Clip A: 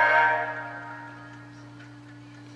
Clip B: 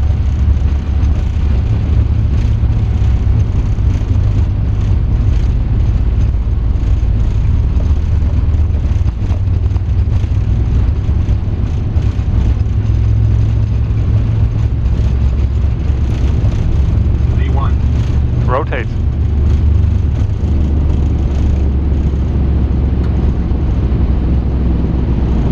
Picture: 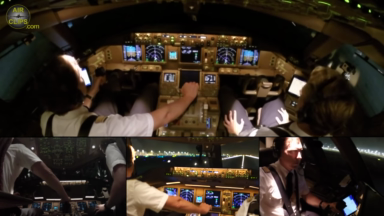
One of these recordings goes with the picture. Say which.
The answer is B